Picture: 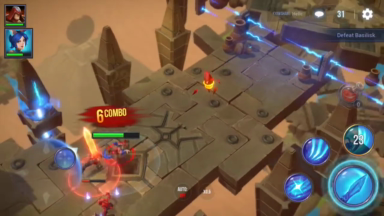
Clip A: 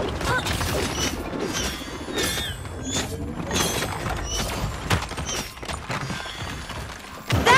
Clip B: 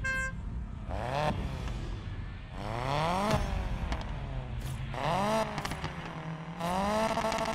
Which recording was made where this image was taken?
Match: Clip A